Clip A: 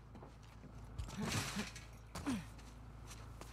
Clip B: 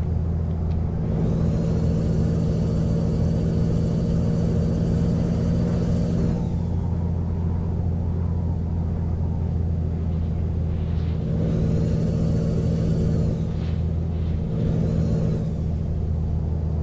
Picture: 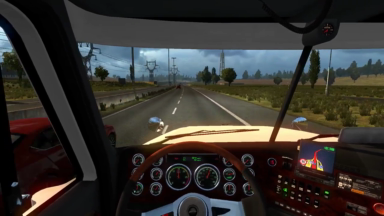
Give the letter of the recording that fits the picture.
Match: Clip B